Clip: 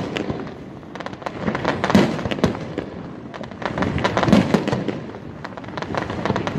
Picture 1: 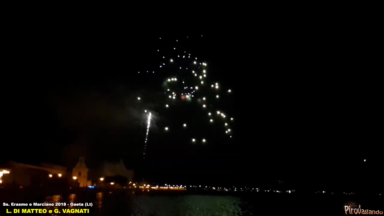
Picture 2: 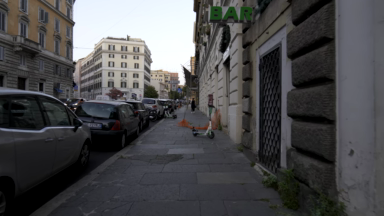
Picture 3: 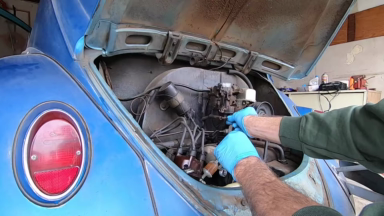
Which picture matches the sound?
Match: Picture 1